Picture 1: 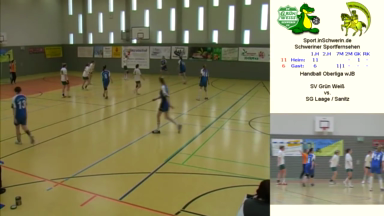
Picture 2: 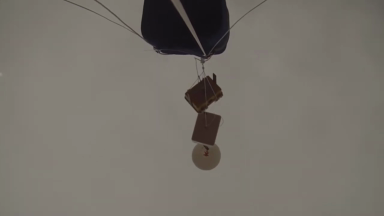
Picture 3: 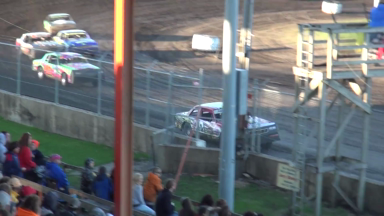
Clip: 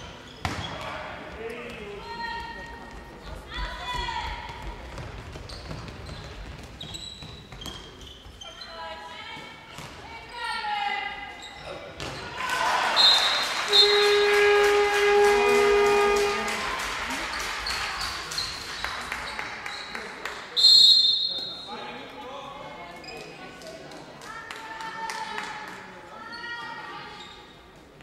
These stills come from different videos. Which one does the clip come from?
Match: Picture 1